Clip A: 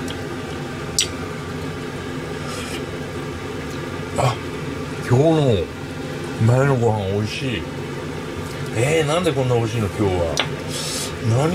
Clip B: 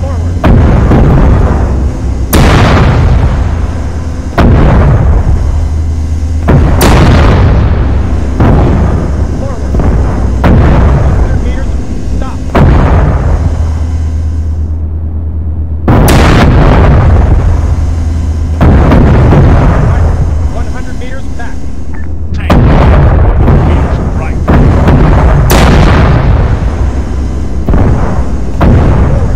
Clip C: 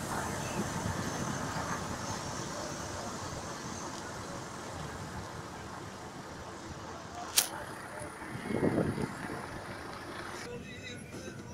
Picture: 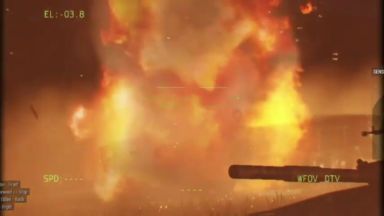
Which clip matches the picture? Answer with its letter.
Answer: B